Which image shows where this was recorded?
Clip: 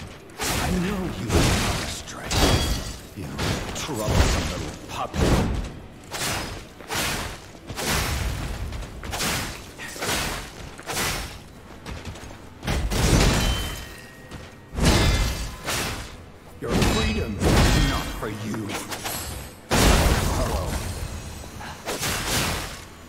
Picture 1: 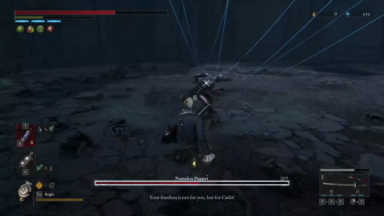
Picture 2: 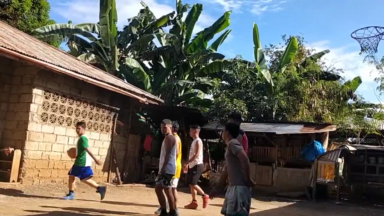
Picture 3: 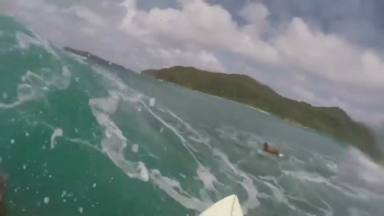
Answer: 1